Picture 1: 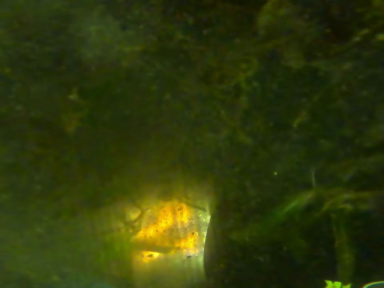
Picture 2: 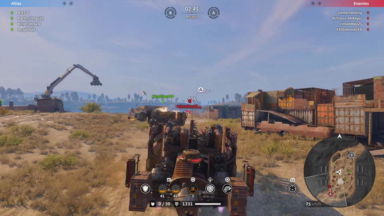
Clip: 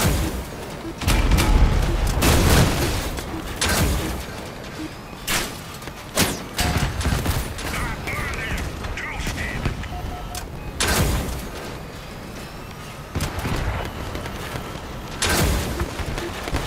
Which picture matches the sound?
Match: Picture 2